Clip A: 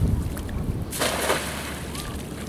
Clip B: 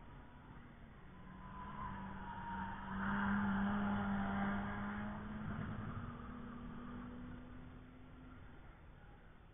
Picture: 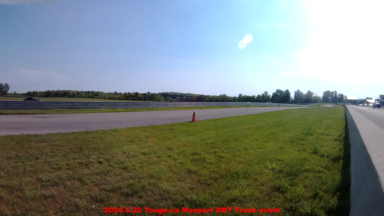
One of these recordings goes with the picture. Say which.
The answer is B